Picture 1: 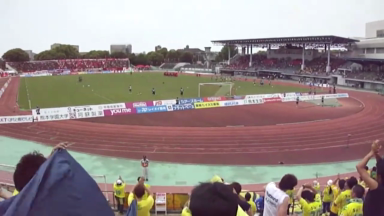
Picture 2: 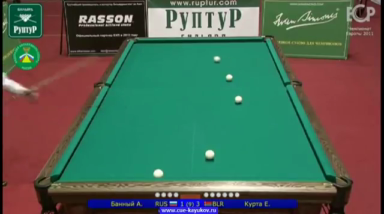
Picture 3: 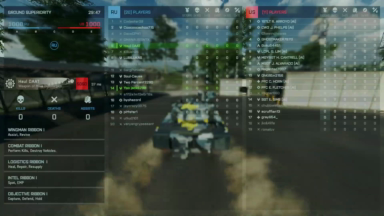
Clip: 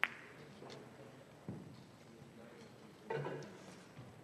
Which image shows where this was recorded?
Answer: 2